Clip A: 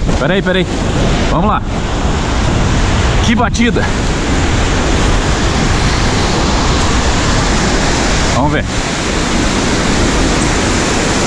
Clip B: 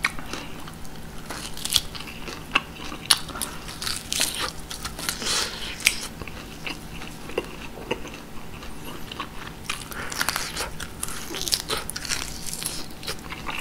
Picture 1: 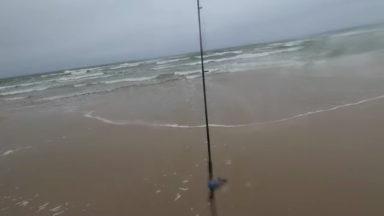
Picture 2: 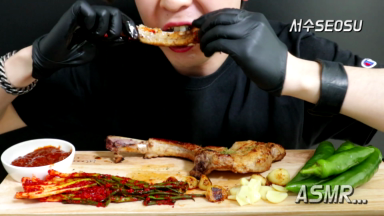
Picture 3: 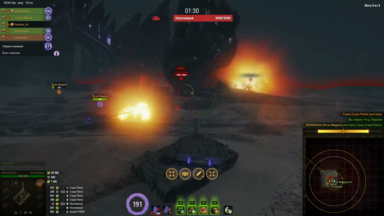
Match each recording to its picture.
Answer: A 1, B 2